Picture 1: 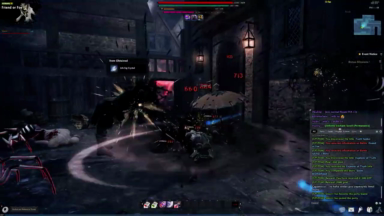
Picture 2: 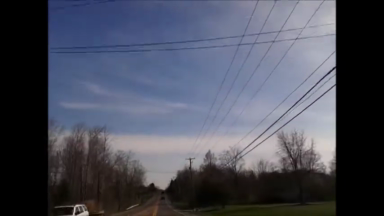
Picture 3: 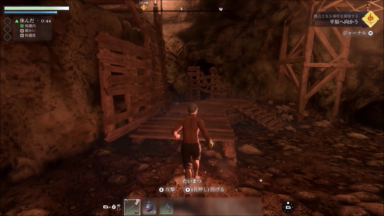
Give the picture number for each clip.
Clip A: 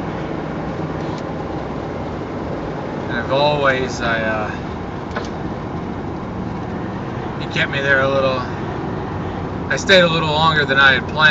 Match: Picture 2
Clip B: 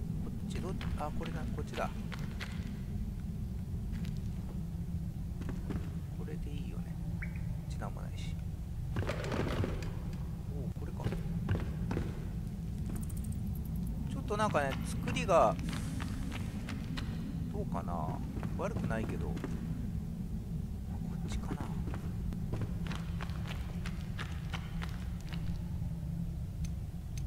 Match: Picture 3